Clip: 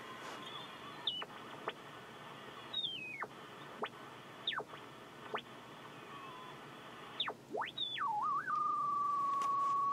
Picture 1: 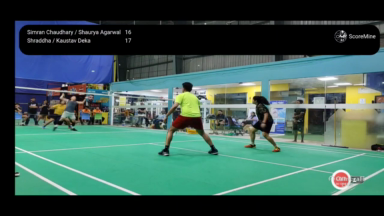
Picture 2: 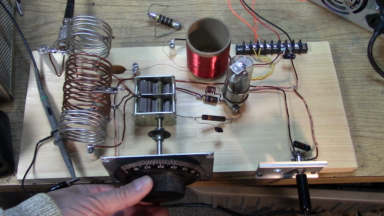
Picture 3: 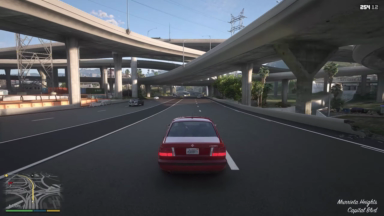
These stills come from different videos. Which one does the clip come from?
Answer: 2